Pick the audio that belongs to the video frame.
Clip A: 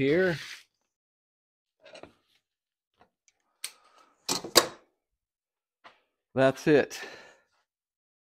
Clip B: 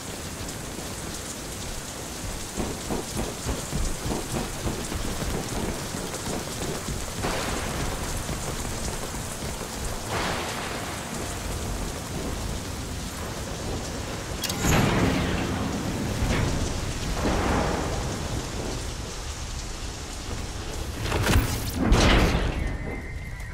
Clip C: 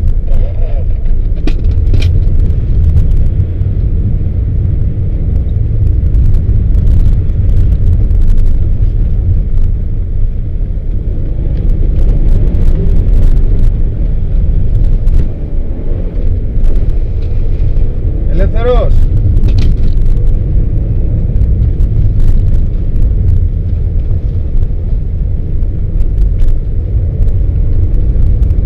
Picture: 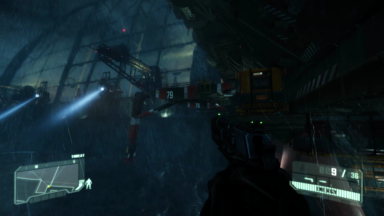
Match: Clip B